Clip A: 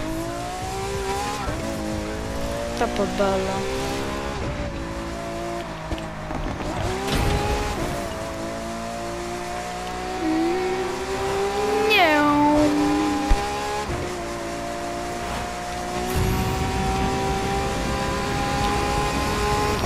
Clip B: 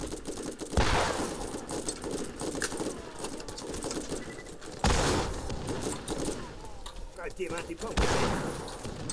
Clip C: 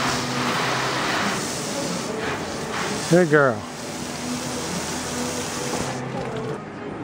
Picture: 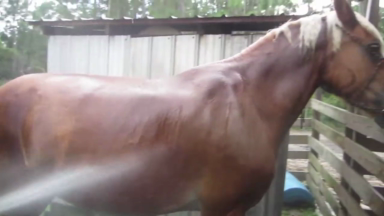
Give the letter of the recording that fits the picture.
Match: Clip C